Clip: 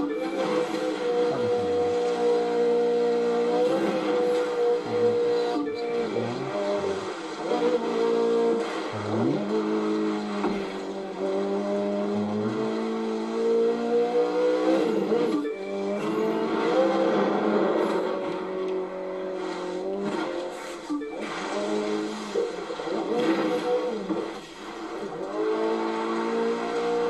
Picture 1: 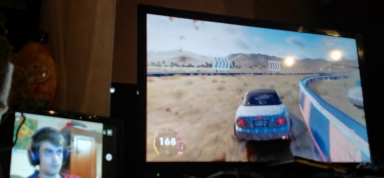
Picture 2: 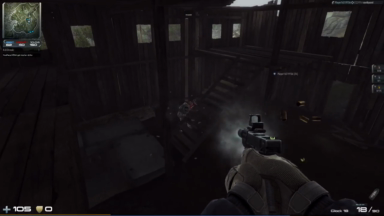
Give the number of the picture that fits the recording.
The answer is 1